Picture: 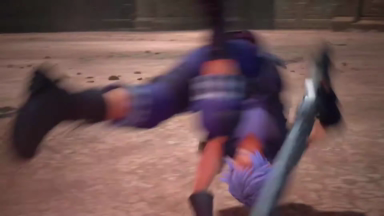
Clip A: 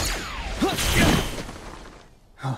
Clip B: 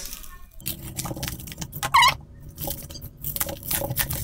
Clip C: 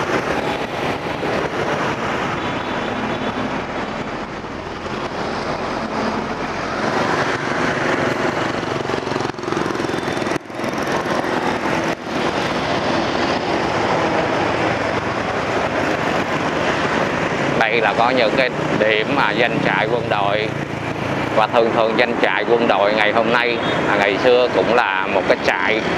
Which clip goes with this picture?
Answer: A